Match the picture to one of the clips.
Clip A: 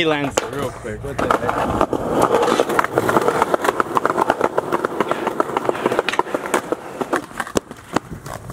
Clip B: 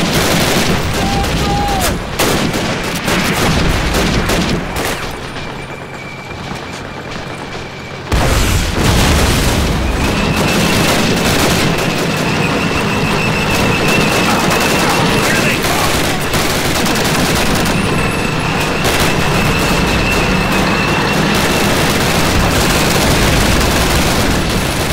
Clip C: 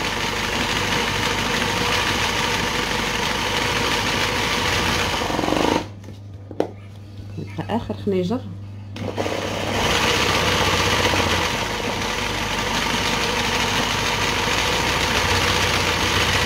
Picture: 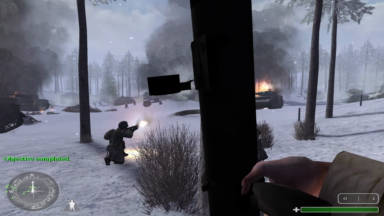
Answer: B